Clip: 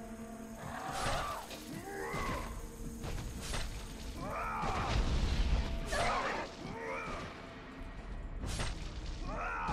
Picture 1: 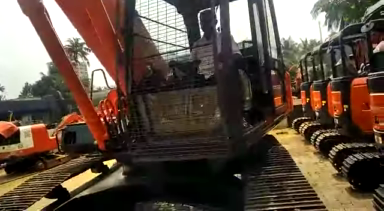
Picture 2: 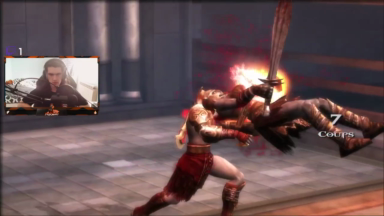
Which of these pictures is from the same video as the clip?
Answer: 2